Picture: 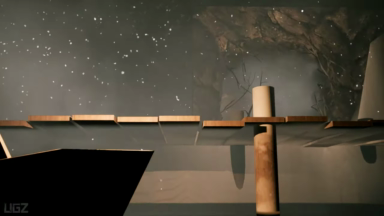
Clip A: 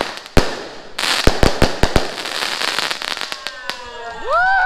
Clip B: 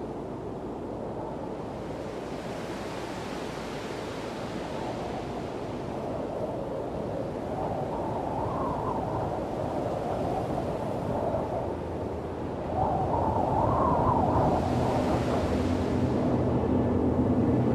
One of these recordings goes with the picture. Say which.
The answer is B